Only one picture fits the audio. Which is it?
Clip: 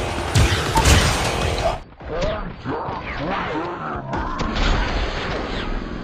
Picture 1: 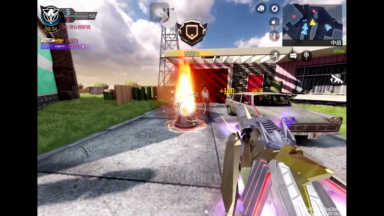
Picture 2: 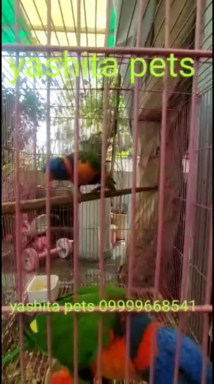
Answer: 1